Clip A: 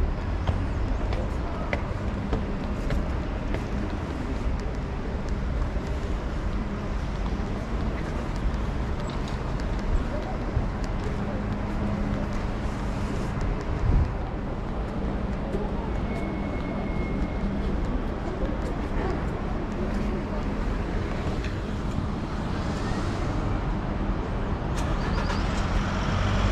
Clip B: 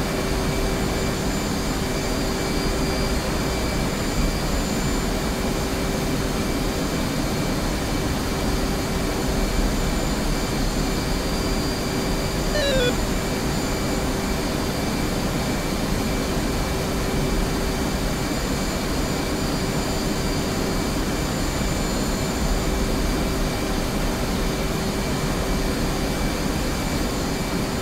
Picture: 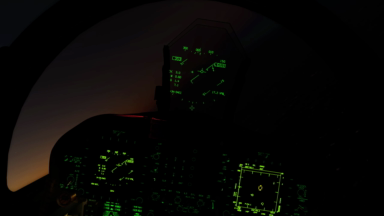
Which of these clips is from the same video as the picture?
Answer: B